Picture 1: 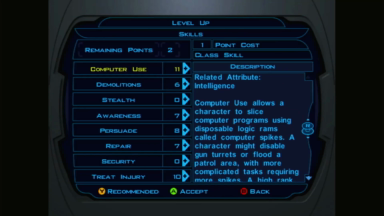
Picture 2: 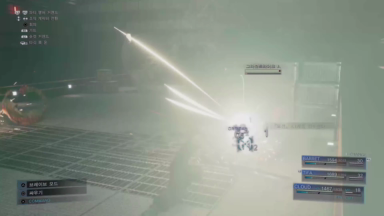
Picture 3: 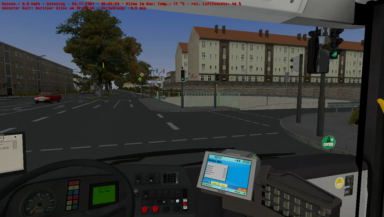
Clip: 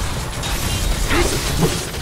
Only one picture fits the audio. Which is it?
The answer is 2